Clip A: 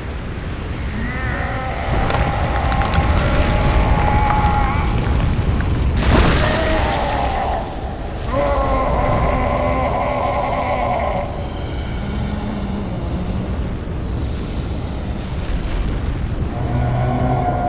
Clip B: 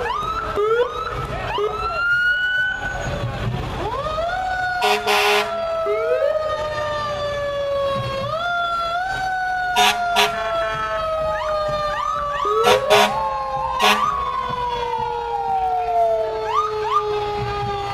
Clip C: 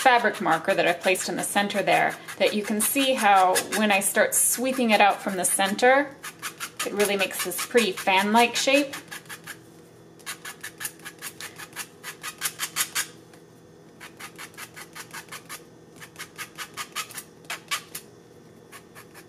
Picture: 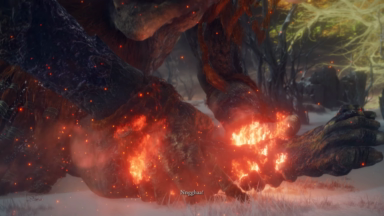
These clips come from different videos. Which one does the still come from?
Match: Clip A